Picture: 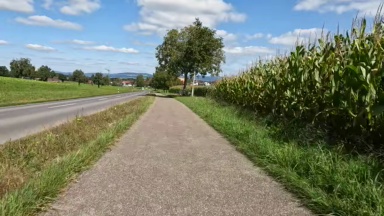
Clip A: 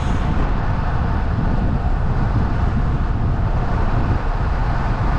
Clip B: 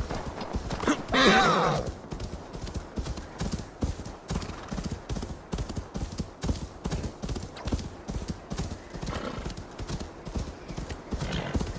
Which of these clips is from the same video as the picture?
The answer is A